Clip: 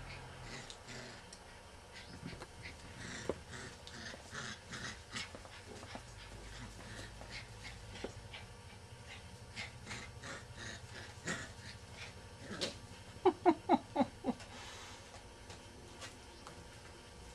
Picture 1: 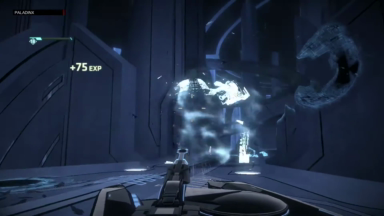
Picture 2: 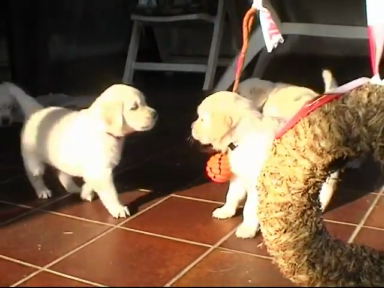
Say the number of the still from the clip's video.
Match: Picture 2